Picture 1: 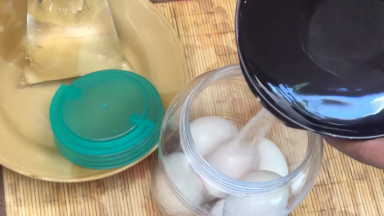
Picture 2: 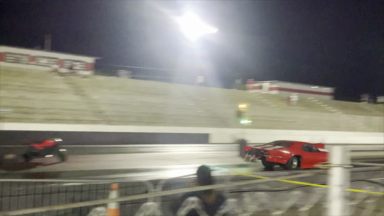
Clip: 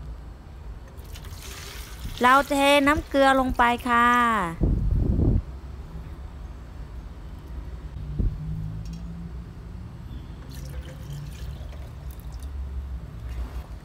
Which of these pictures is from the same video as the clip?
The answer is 1